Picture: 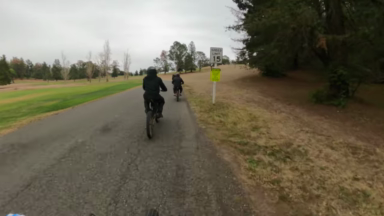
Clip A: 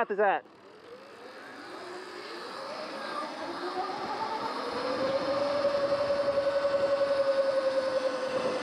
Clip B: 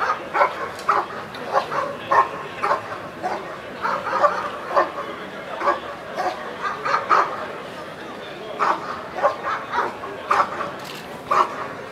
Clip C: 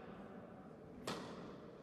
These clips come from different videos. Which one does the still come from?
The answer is A